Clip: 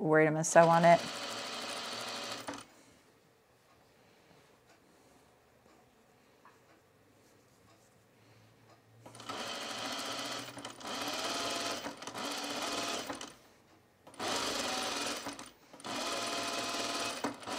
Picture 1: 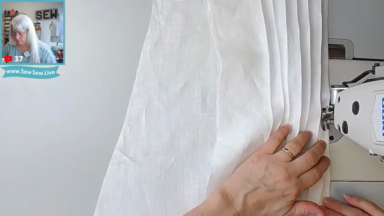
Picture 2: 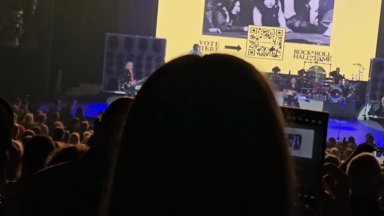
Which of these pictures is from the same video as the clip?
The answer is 1